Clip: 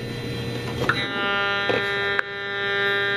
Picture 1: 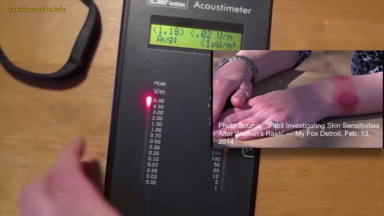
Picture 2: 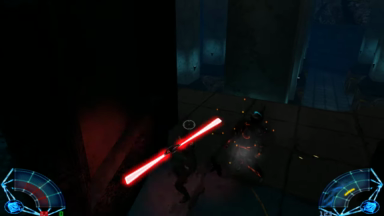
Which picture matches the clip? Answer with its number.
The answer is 1